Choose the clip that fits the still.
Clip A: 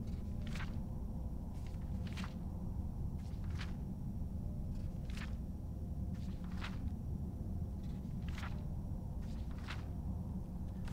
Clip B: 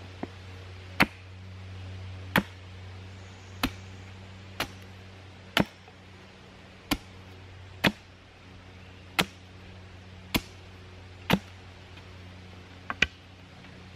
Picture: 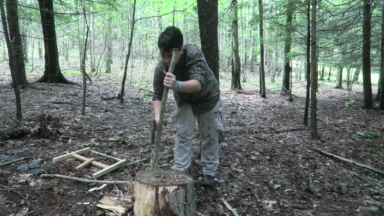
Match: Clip B